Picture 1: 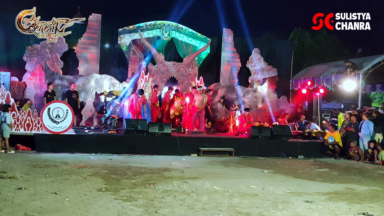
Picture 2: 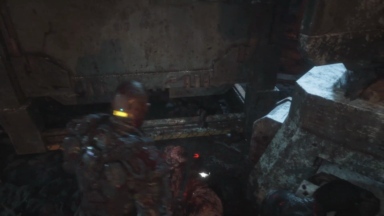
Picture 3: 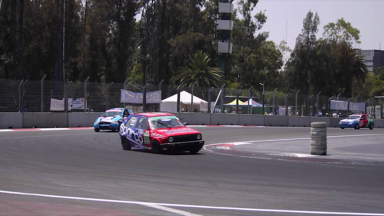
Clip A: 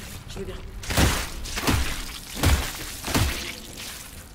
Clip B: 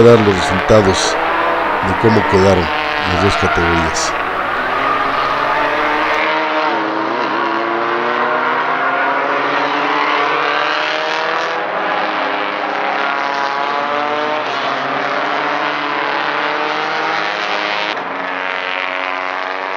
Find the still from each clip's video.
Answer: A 2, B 3